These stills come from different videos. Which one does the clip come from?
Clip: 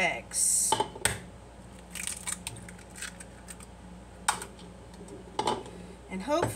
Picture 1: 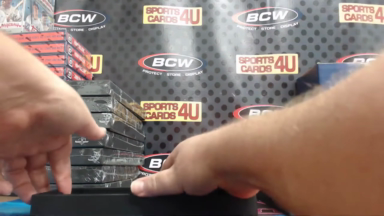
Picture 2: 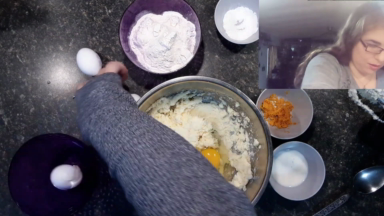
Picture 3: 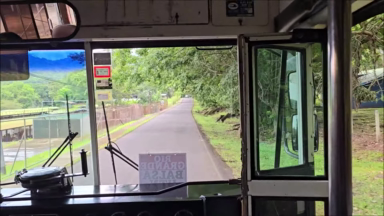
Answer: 2